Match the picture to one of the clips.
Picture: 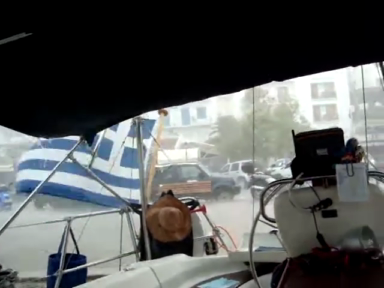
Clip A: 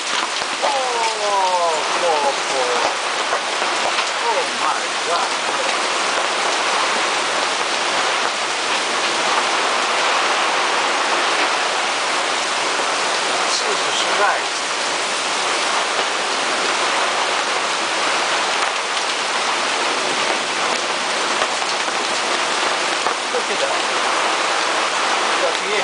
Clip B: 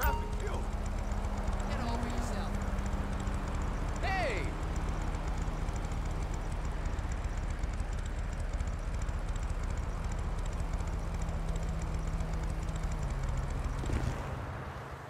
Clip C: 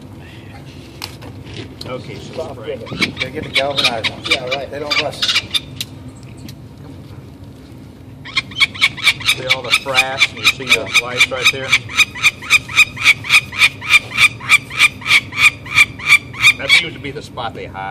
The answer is A